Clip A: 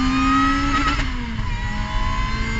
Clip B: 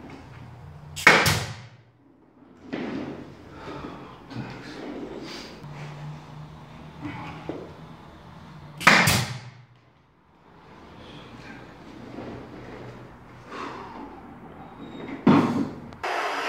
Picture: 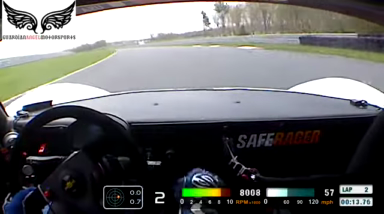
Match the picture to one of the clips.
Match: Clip A